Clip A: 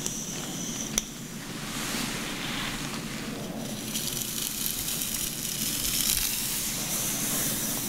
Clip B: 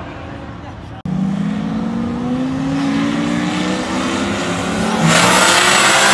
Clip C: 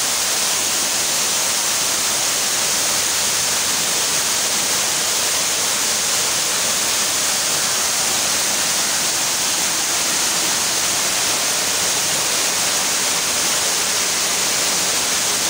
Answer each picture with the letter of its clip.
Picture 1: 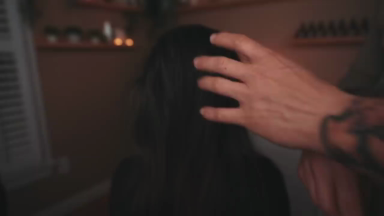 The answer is A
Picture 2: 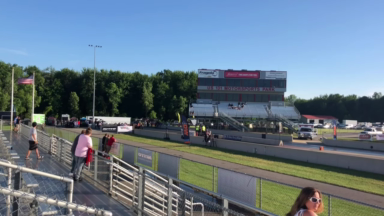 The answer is B